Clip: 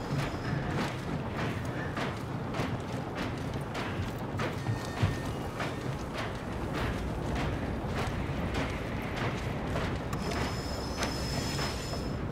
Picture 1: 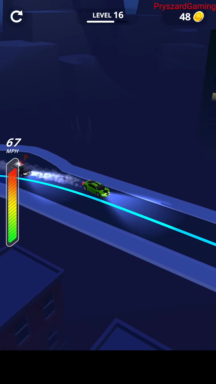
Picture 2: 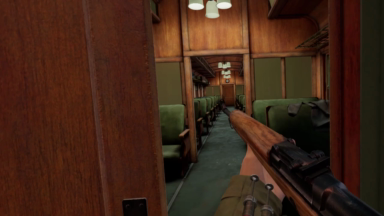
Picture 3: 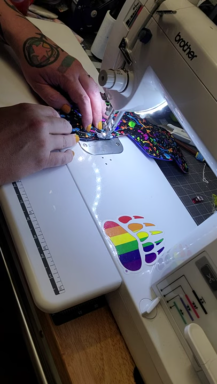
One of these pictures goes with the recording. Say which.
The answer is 2